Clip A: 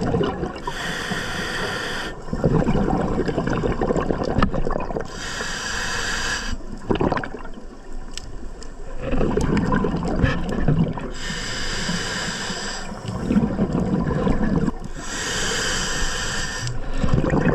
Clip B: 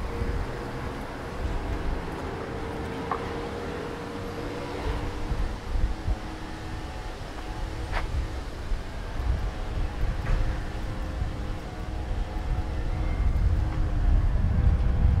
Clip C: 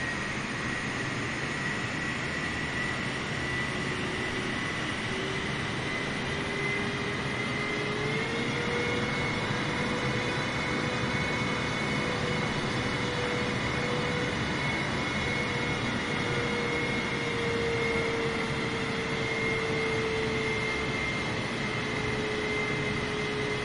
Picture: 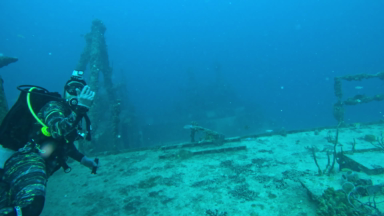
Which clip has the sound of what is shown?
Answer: A